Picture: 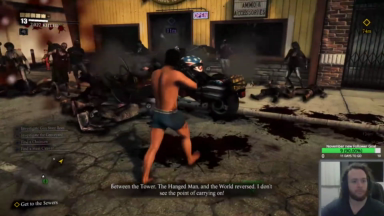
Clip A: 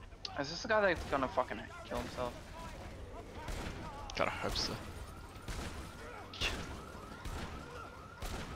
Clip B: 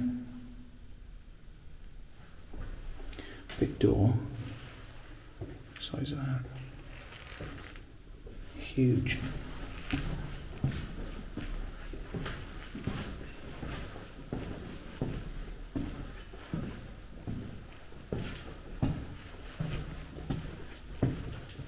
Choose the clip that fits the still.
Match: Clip A